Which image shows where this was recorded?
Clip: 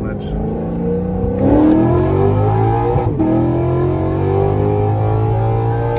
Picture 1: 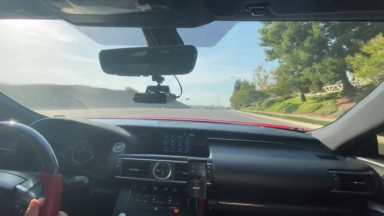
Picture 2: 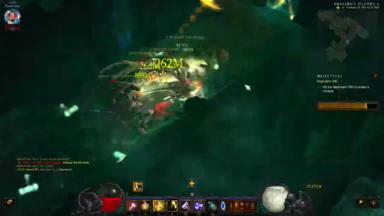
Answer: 1